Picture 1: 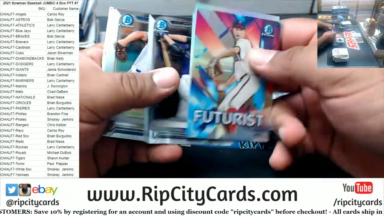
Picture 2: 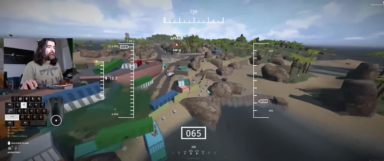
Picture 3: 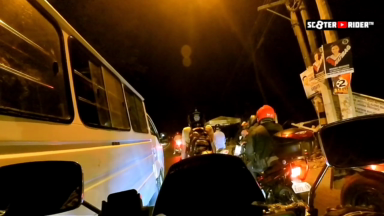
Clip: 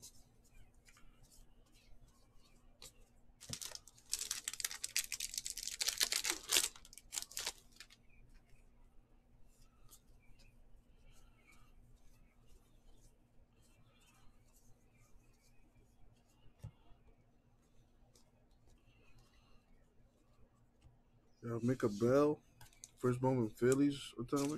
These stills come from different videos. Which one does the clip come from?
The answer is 1